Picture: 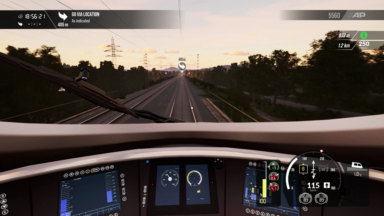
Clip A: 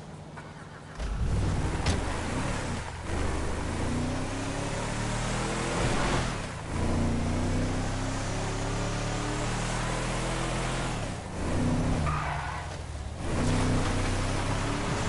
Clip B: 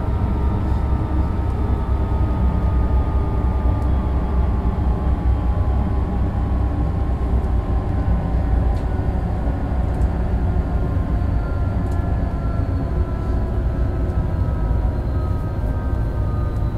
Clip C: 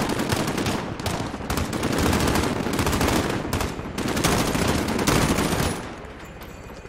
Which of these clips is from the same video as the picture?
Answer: B